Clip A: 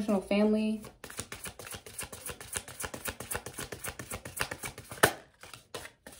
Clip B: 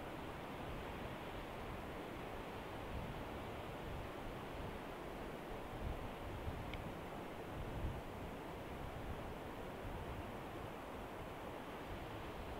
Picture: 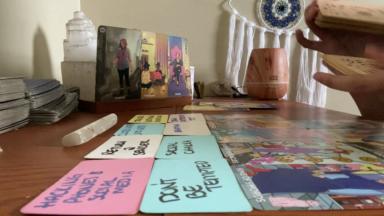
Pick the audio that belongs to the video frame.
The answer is A